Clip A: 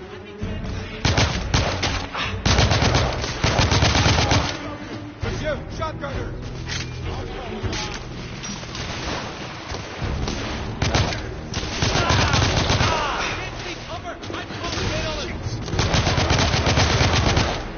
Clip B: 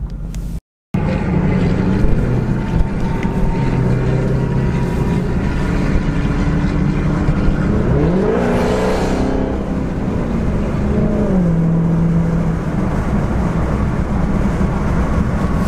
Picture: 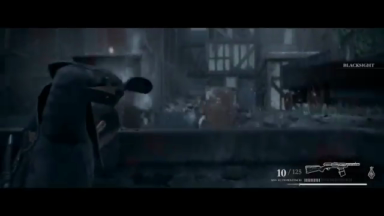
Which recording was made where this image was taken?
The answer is A